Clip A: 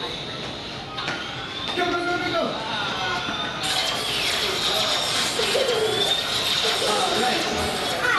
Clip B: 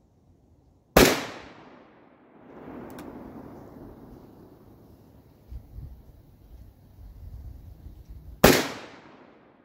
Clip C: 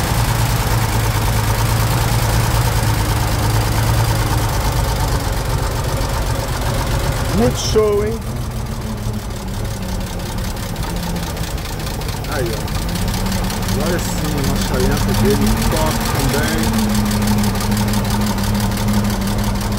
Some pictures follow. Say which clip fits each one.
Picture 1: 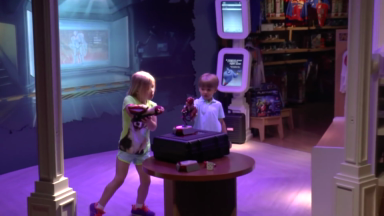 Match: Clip A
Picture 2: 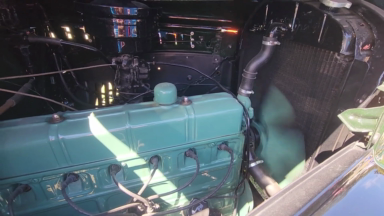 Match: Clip C